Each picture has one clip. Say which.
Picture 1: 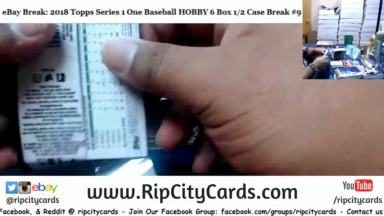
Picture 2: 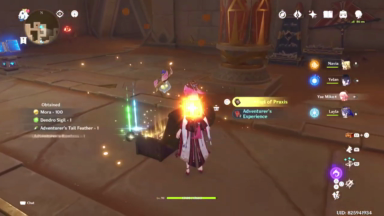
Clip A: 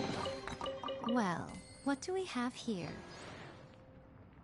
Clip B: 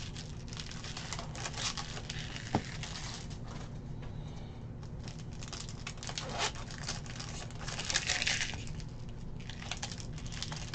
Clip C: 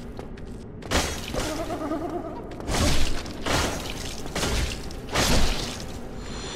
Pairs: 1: B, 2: A